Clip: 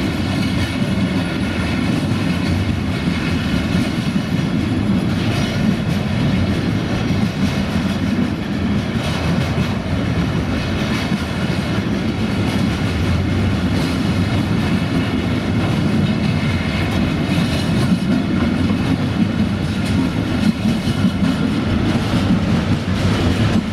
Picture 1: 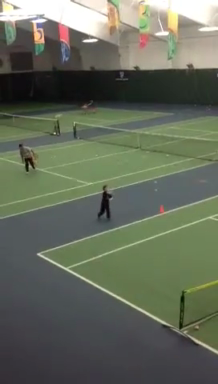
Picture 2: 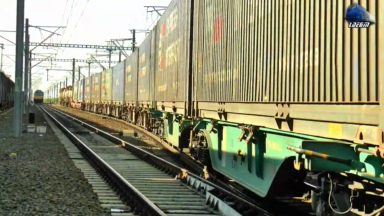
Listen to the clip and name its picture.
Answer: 2